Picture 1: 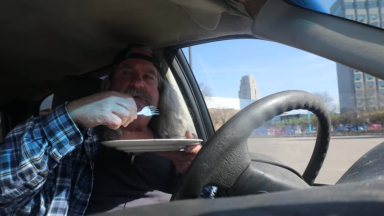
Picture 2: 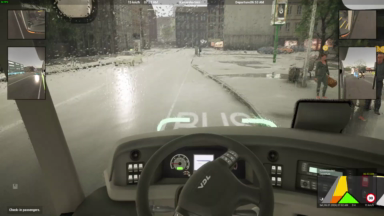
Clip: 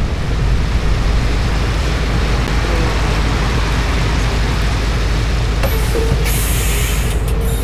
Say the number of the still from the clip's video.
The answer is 2